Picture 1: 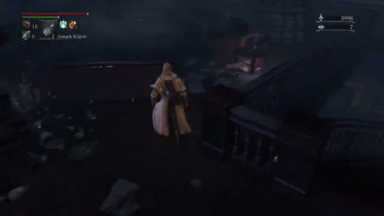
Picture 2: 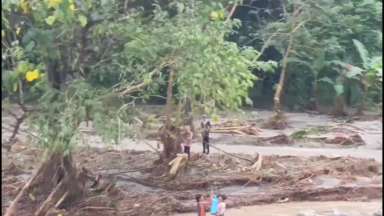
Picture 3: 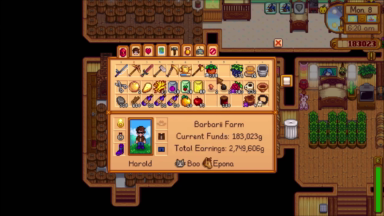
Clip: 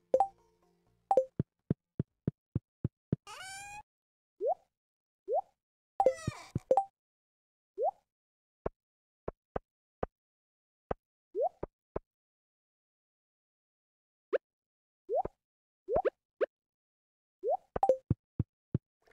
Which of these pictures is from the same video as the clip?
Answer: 3